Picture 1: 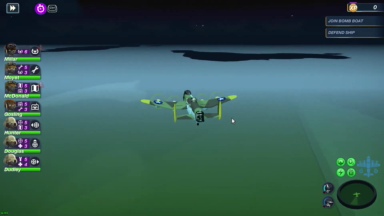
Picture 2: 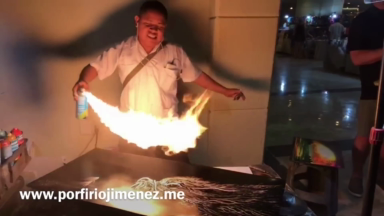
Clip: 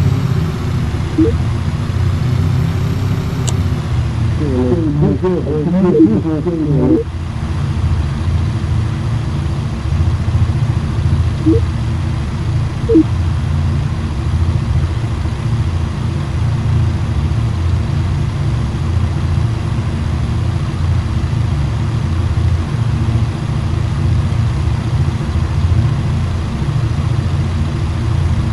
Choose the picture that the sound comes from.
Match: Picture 1